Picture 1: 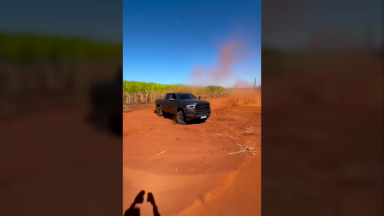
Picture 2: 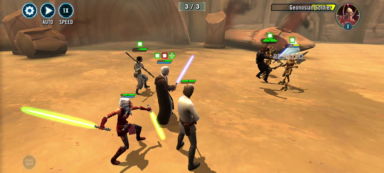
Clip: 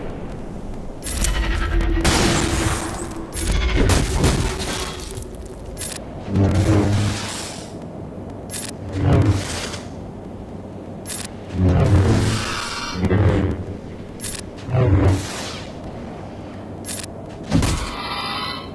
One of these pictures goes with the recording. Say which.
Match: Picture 2